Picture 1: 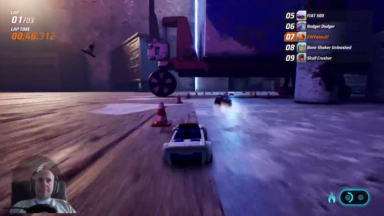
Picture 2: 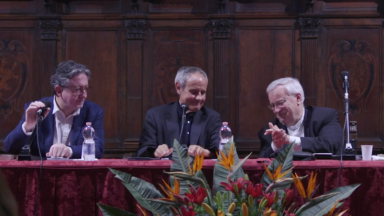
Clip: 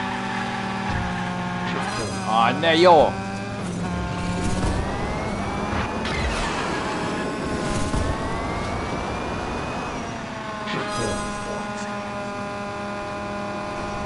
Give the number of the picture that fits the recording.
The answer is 1